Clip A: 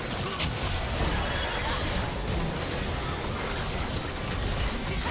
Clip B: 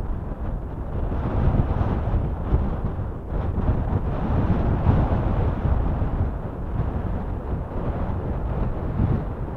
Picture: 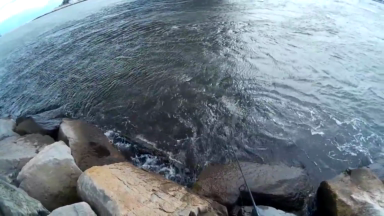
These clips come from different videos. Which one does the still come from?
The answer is B